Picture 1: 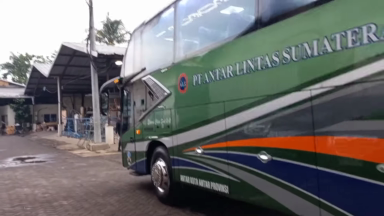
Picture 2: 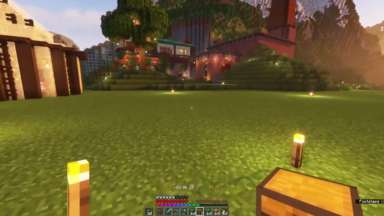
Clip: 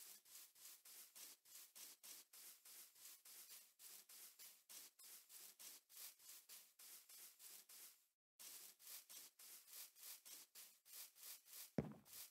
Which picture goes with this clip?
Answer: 2